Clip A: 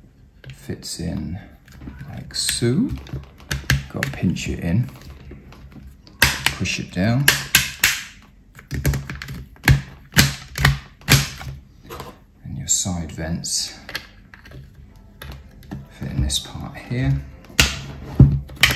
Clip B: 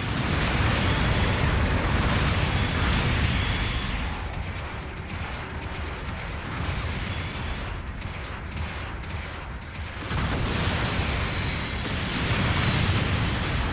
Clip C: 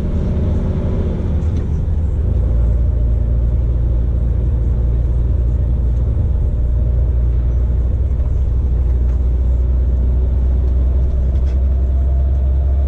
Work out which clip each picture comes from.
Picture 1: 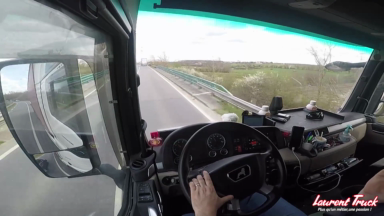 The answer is C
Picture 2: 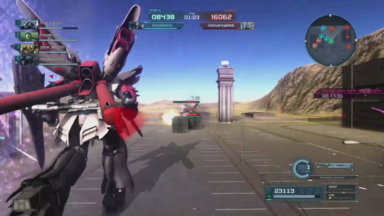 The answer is B